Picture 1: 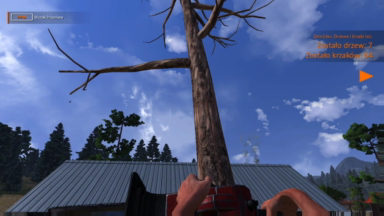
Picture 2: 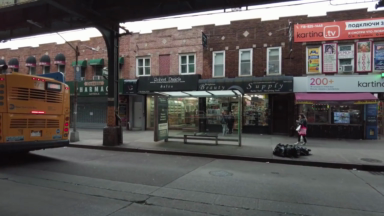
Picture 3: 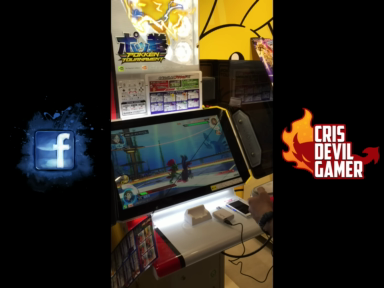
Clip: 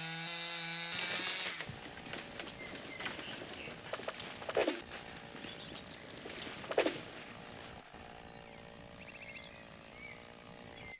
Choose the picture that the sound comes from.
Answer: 1